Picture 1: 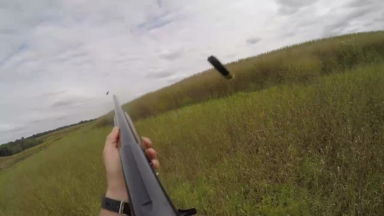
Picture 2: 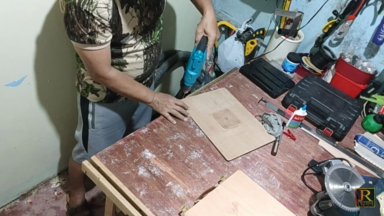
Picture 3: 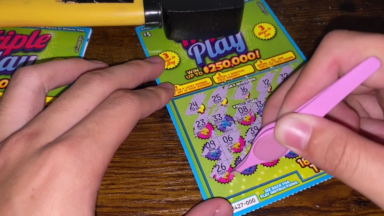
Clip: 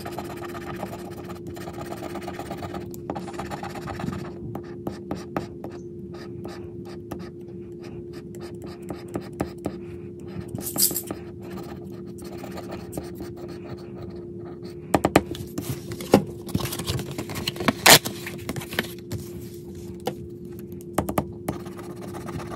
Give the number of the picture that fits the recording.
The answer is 3